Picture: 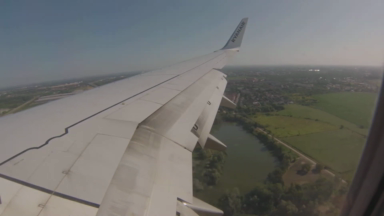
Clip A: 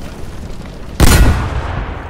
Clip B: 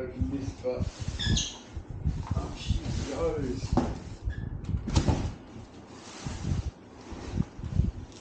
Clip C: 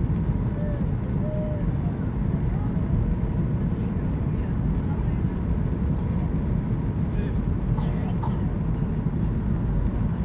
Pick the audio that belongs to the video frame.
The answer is C